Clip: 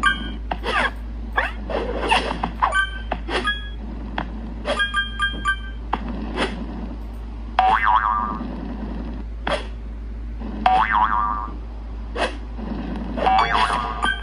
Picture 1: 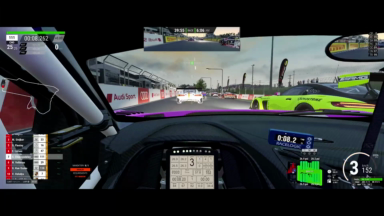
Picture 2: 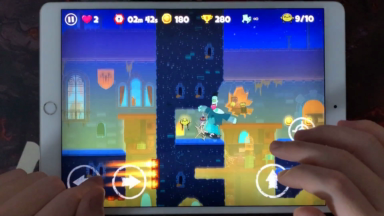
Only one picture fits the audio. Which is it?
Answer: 2